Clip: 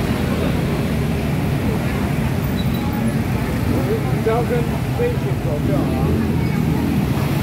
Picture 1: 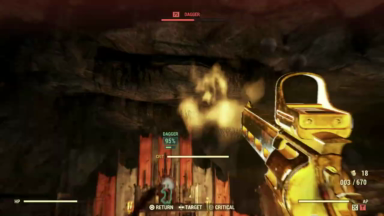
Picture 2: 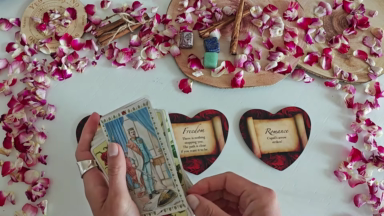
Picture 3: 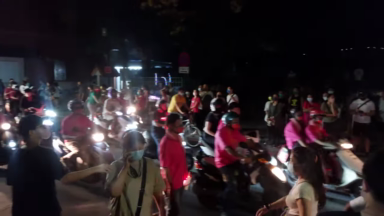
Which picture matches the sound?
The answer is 3